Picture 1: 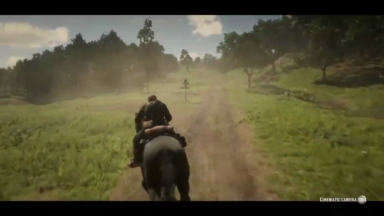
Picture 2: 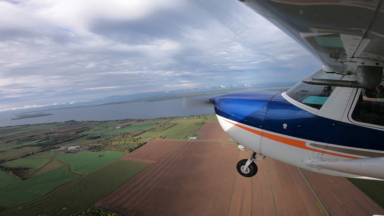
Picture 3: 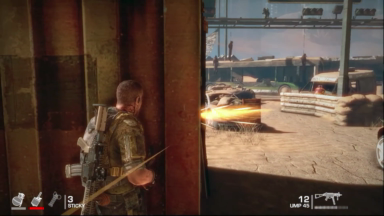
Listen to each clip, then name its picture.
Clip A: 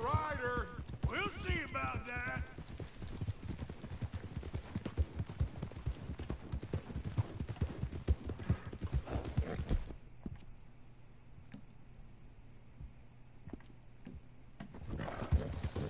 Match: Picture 1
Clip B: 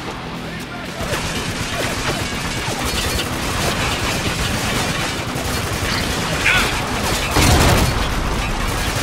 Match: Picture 3